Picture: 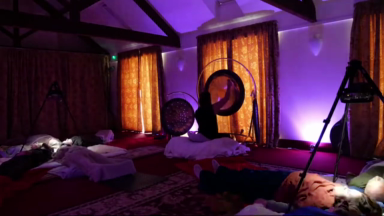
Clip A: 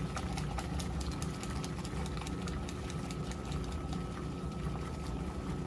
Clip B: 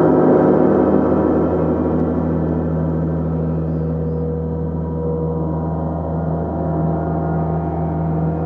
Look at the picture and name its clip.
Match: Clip B